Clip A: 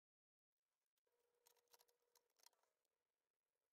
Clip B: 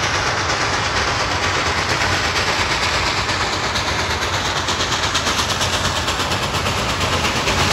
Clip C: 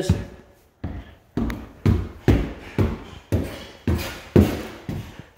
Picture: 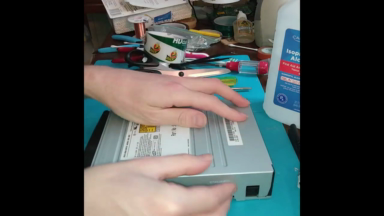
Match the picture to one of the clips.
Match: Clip A